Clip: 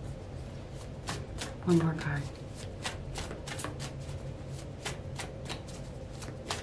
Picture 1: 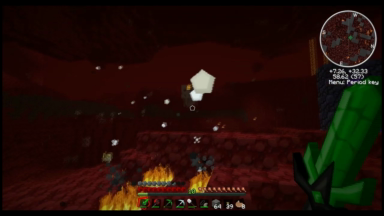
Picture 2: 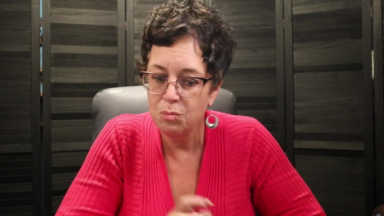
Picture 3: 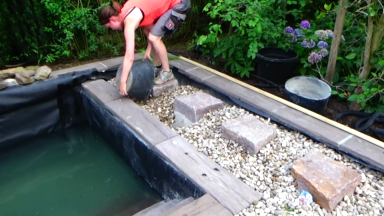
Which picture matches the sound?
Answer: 2